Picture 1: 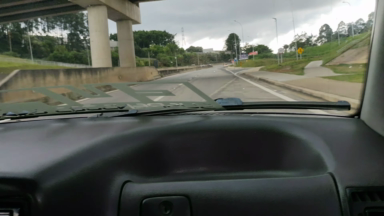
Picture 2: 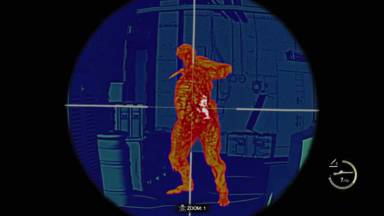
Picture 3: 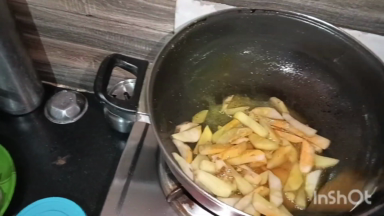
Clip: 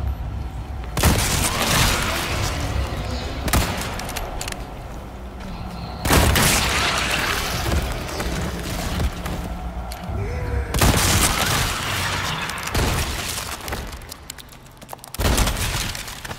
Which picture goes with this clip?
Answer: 2